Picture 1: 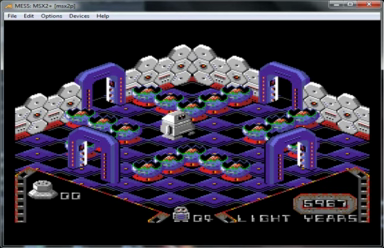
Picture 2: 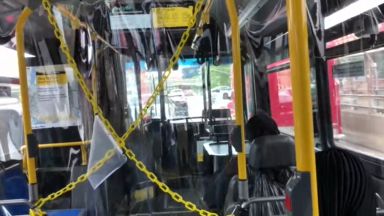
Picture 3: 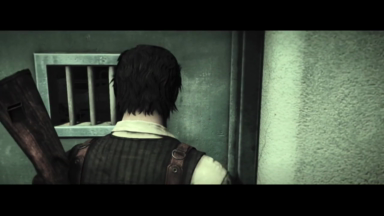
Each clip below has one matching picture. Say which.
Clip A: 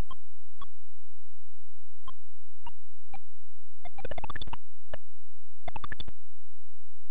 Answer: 1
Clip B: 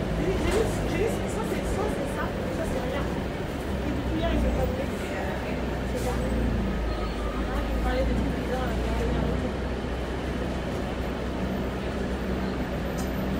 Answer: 2